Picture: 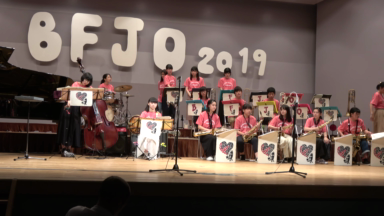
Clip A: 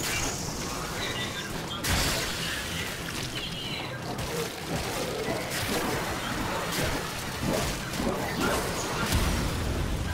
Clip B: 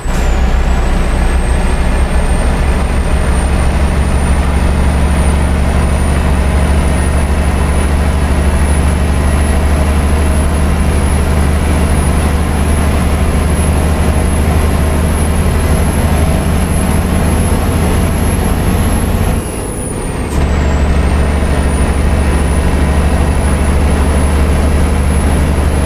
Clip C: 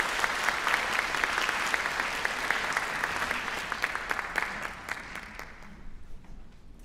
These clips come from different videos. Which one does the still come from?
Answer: C